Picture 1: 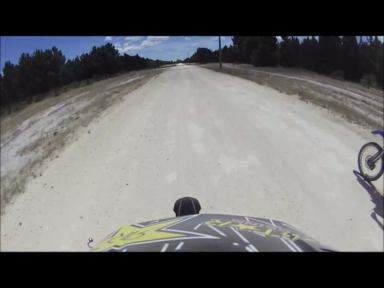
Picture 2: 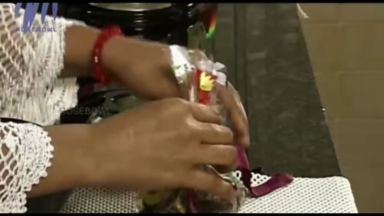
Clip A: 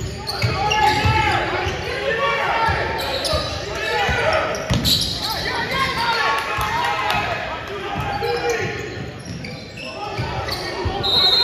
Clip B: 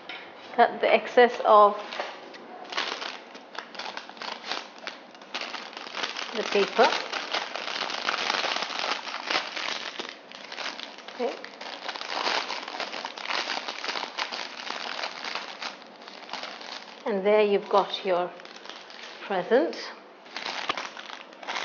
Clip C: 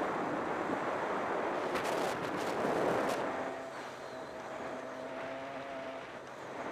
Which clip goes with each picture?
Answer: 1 C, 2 B